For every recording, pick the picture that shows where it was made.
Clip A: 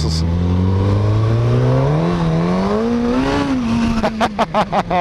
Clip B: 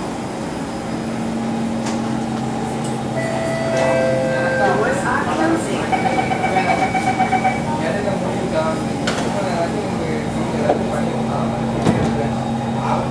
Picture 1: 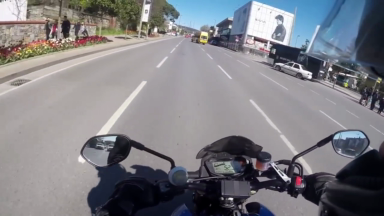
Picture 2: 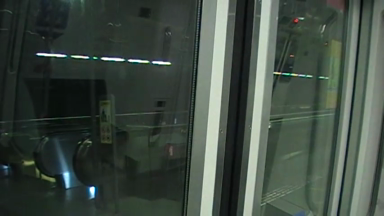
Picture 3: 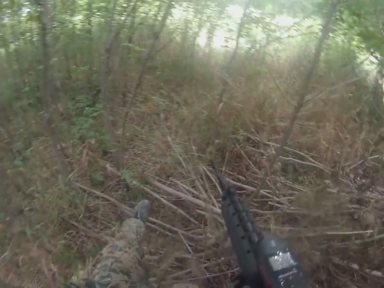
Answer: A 1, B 2